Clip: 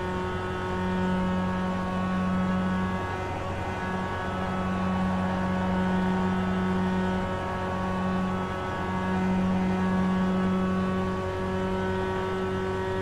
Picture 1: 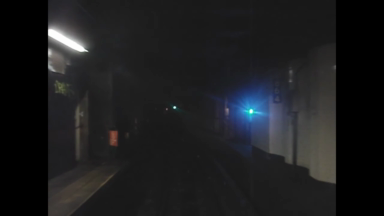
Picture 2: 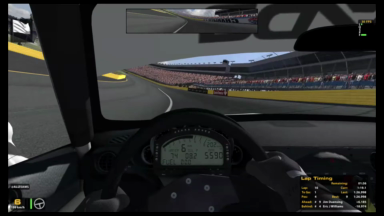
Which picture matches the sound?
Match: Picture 2